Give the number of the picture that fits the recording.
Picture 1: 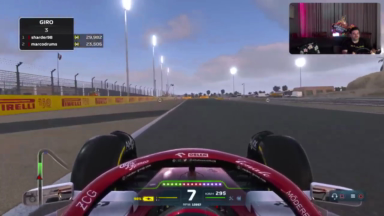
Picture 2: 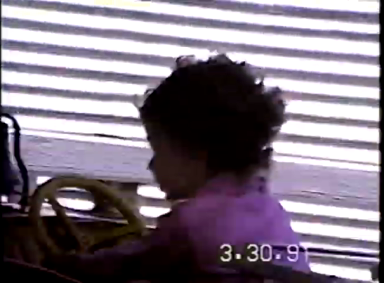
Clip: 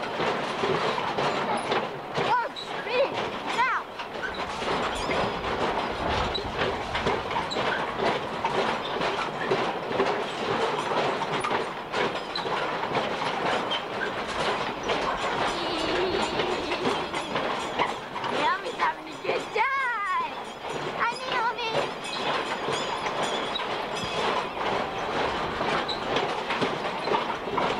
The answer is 2